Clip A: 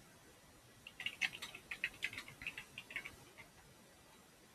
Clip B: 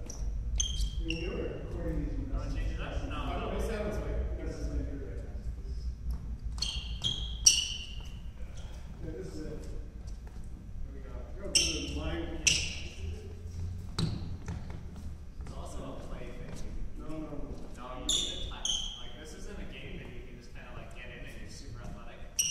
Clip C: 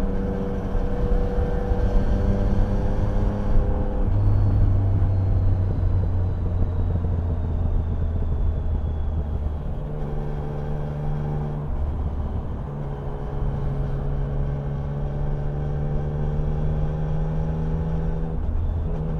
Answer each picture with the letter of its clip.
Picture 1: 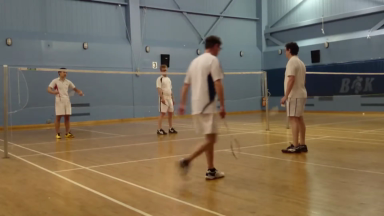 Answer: B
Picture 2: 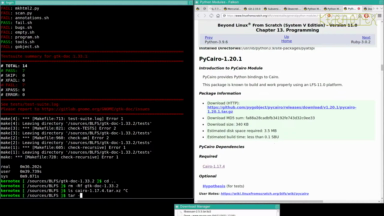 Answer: A